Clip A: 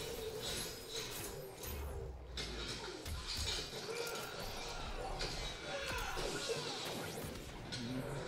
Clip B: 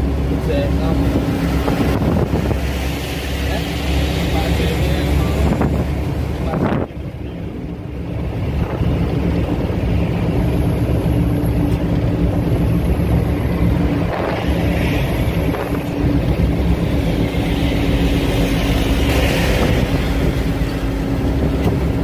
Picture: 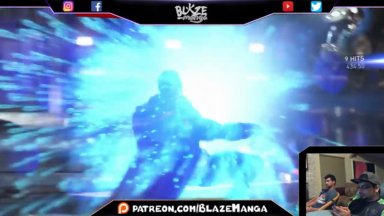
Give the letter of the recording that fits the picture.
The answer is A